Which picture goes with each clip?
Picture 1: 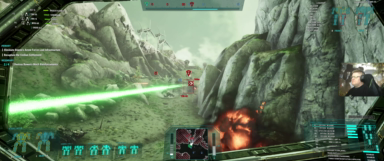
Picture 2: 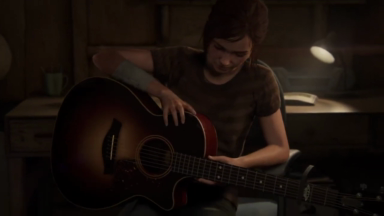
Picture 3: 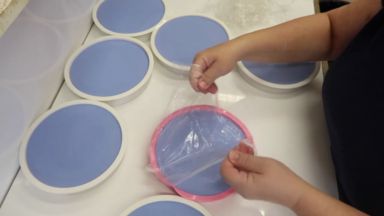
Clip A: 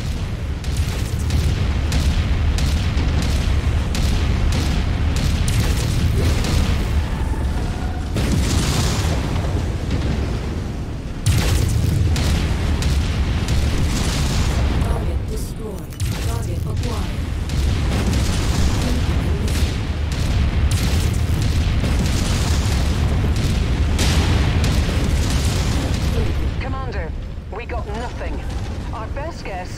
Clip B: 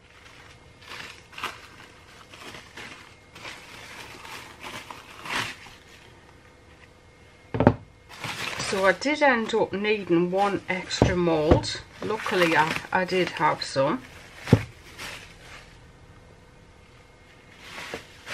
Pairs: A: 1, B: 3